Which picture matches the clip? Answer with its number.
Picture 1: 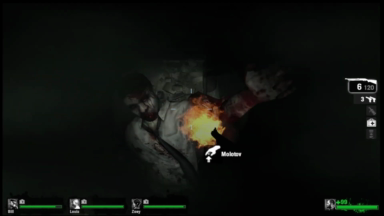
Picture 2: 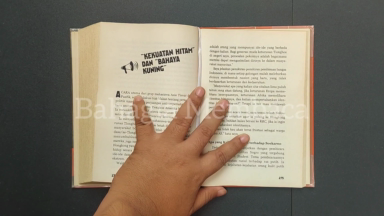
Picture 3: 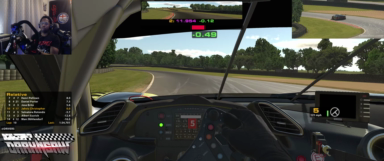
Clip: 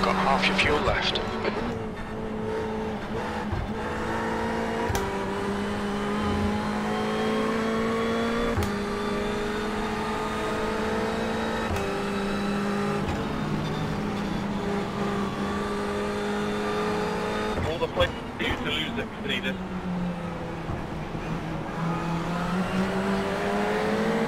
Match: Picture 3